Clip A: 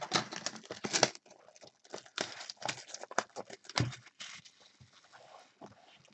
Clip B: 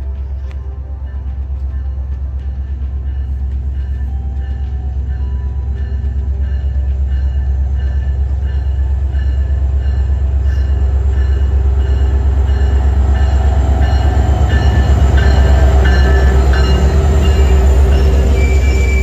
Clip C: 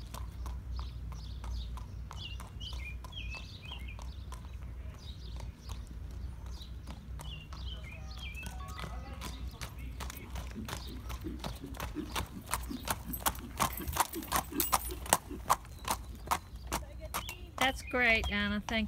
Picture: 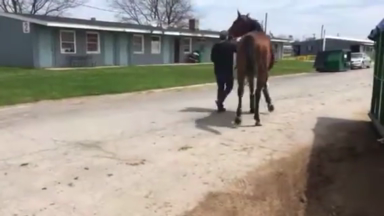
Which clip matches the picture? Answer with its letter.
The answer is C